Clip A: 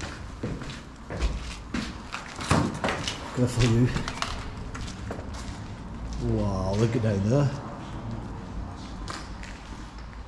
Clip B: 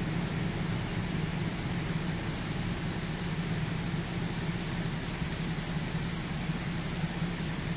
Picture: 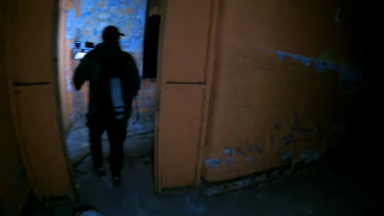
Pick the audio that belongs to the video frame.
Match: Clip A